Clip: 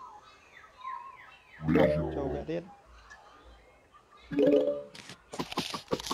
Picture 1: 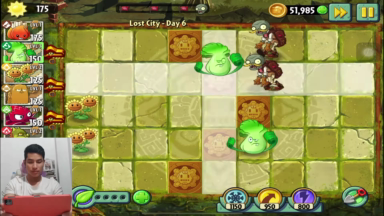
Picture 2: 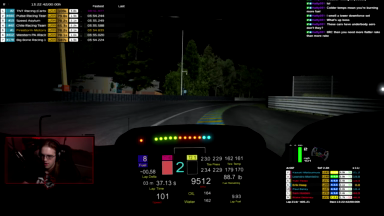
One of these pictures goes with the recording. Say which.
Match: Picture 1